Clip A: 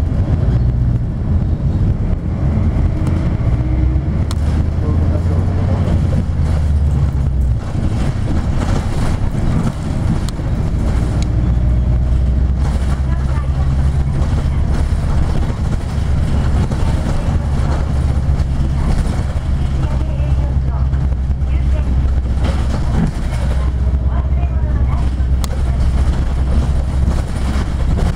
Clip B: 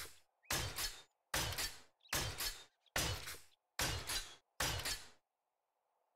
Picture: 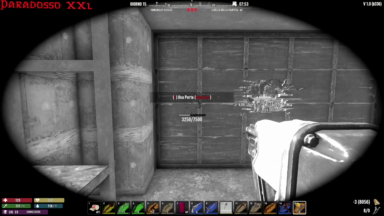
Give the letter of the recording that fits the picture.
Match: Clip B